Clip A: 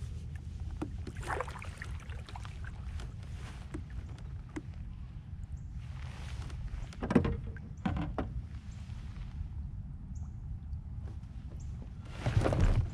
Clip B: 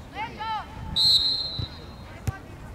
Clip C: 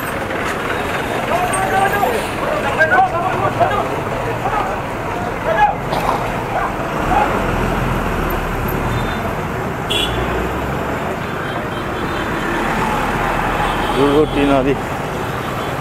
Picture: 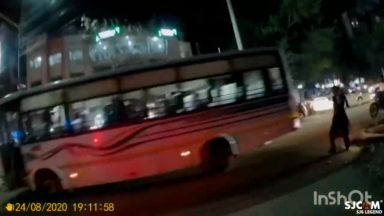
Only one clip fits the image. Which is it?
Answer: C